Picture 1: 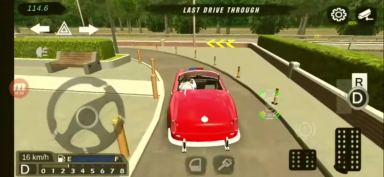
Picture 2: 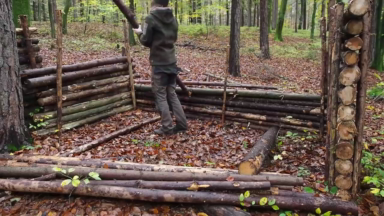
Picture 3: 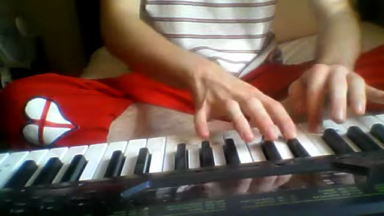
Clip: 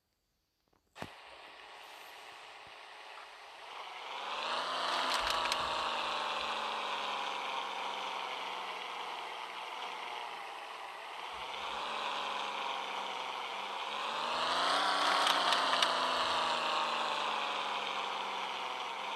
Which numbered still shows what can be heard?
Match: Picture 1